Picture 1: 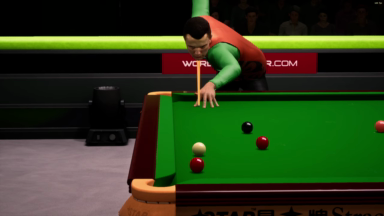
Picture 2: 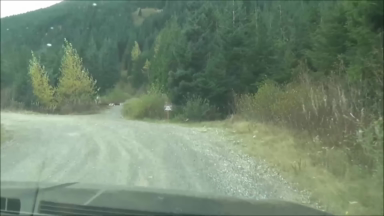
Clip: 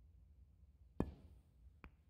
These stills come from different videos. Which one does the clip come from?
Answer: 1